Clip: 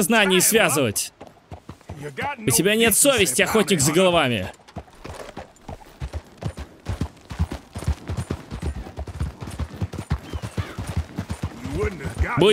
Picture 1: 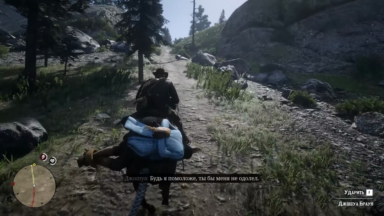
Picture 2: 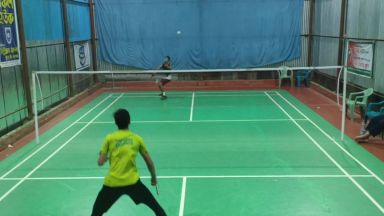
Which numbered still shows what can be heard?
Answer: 1